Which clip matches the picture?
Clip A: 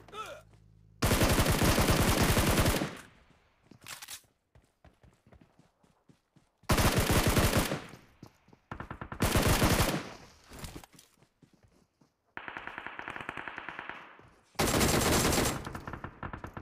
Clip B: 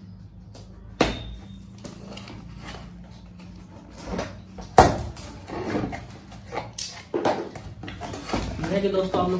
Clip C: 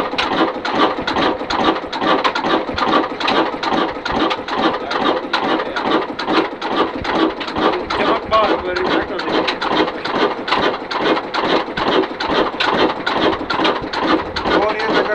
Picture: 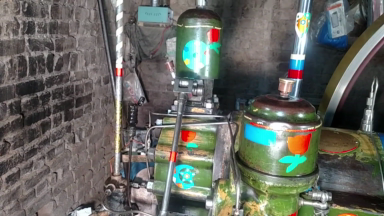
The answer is C